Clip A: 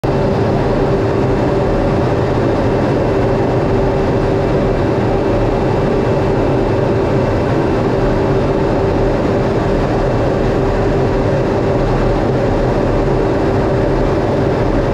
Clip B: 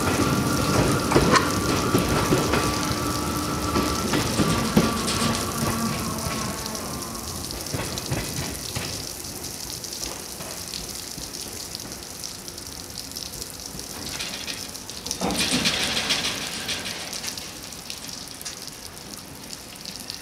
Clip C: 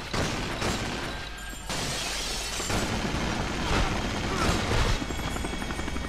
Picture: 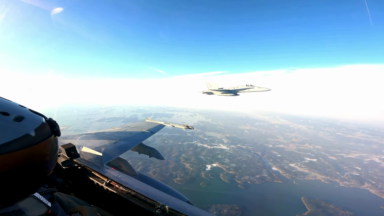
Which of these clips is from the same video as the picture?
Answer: A